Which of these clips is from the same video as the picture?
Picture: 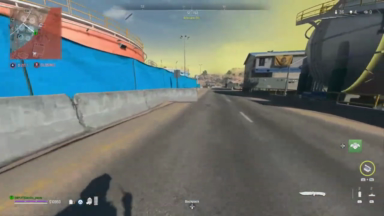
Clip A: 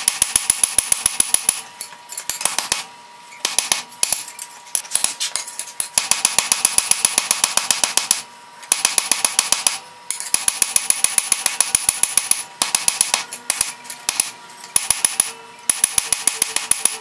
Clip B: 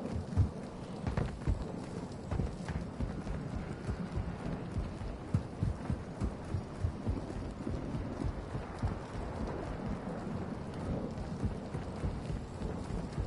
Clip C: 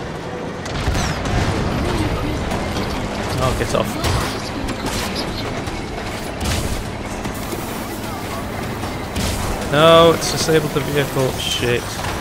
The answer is B